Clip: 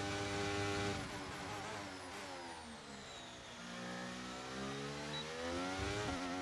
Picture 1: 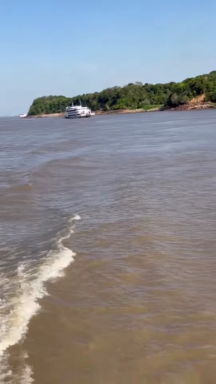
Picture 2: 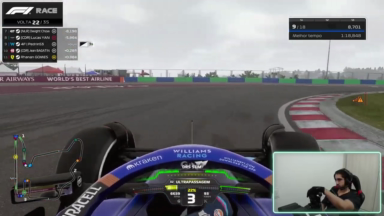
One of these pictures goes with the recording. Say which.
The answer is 2